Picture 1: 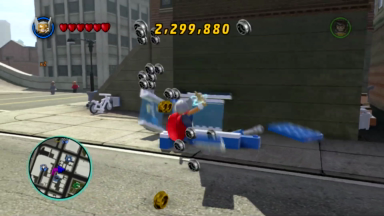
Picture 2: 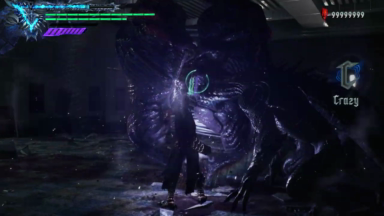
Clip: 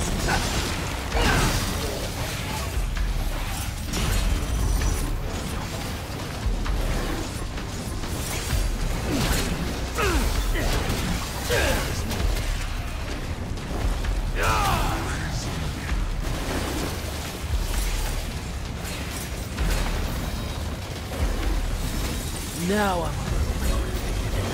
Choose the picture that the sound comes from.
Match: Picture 2